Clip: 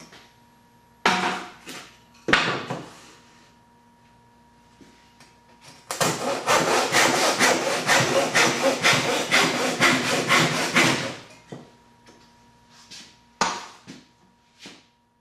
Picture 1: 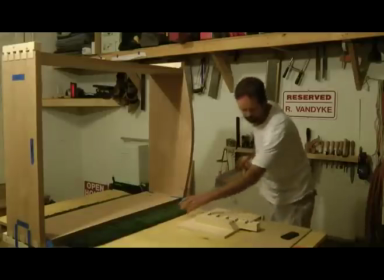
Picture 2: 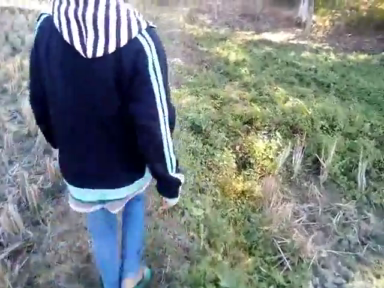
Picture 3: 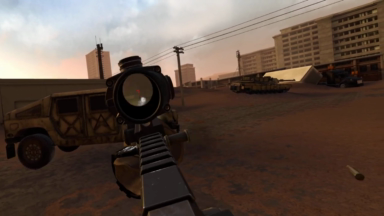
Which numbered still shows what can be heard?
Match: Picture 1